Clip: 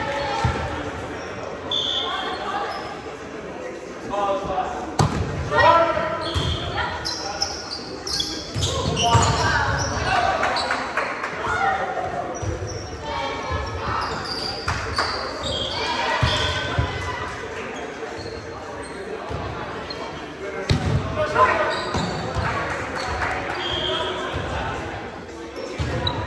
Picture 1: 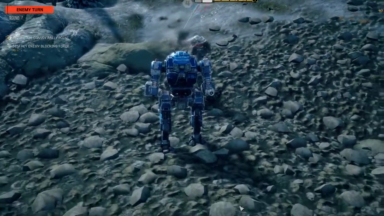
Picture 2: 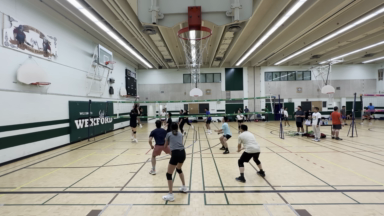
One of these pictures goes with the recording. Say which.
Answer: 2